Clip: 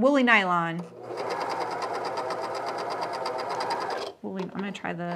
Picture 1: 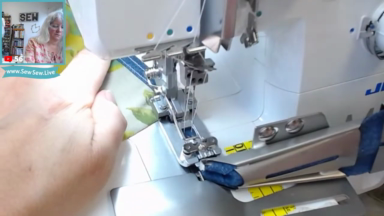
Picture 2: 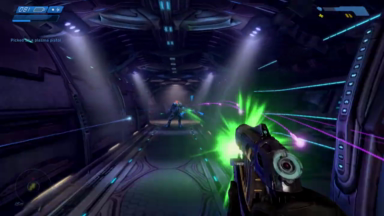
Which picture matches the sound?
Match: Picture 1